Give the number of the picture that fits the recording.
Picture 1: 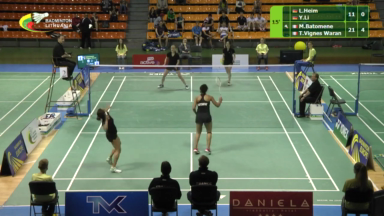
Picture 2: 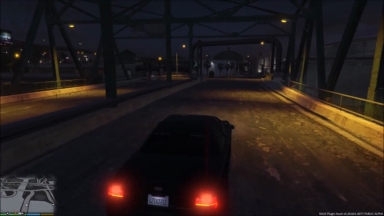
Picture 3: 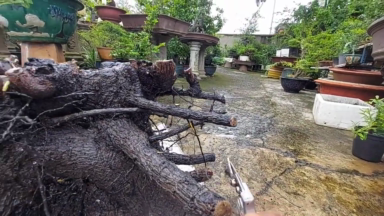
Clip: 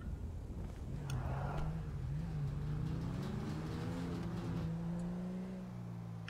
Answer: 2